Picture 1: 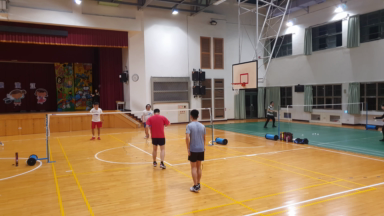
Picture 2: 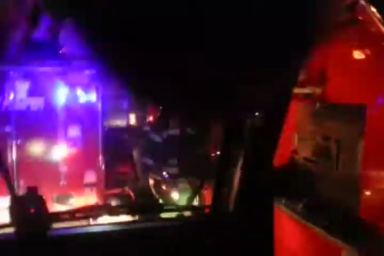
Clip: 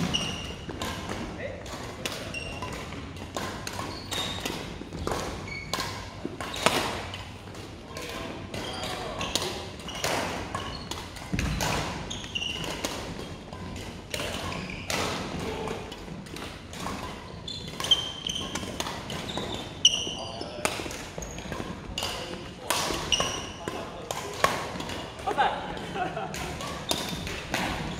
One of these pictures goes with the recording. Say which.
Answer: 1